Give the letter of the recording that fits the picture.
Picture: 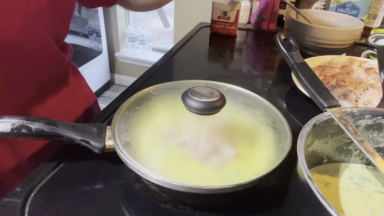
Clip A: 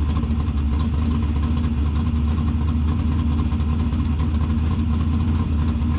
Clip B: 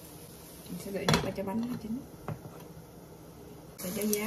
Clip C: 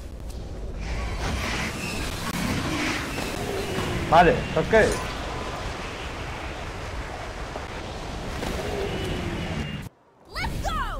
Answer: B